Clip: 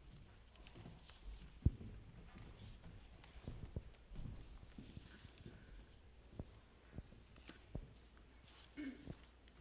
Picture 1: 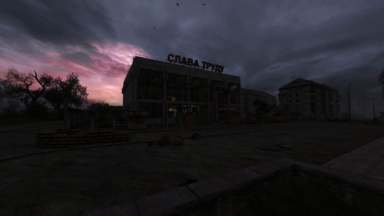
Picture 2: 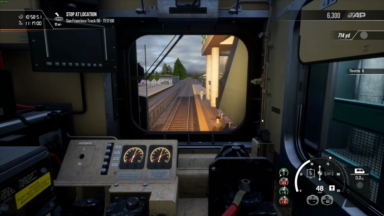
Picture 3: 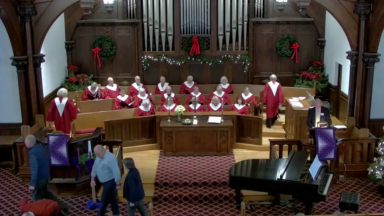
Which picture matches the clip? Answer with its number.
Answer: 3